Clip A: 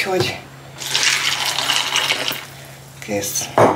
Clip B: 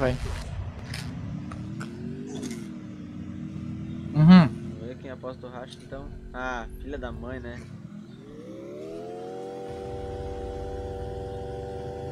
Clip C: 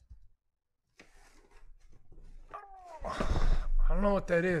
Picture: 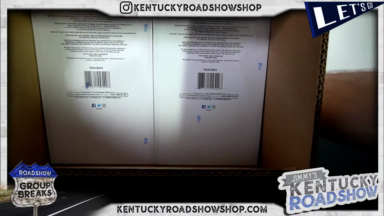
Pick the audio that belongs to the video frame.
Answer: C